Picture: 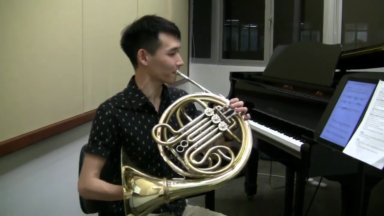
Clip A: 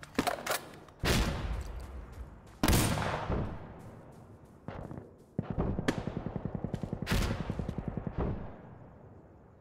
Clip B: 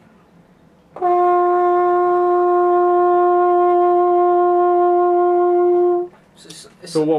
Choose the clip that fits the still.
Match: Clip B